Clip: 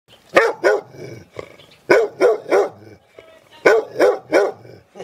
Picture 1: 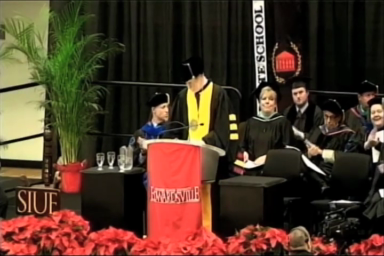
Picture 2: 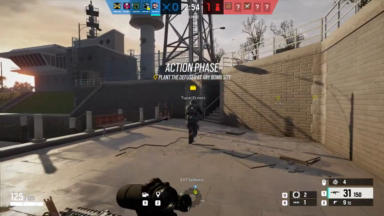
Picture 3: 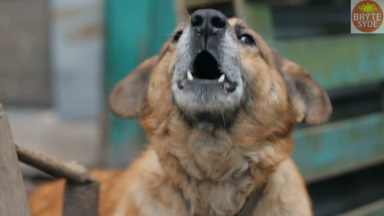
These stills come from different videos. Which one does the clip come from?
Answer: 3